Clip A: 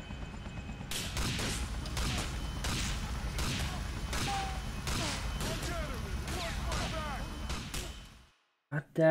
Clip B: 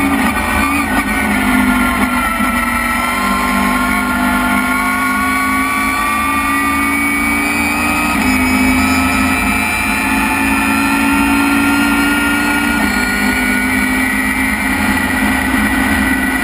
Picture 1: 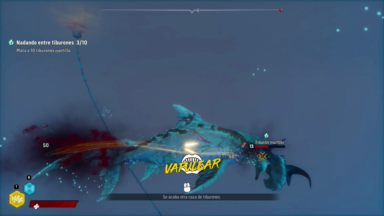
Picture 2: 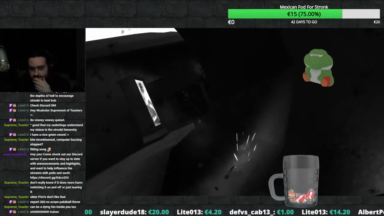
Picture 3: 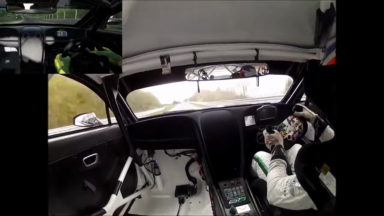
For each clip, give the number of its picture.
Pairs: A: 2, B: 3